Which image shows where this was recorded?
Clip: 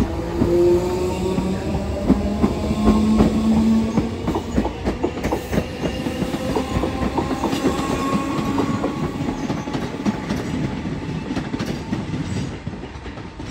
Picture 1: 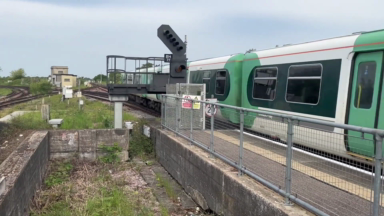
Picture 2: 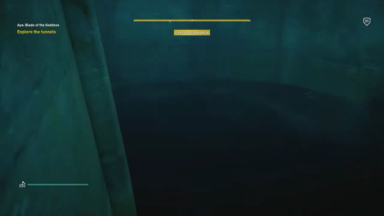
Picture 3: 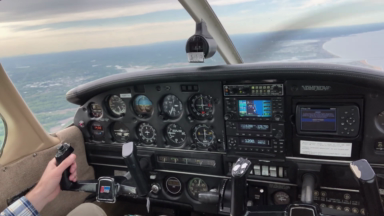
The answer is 1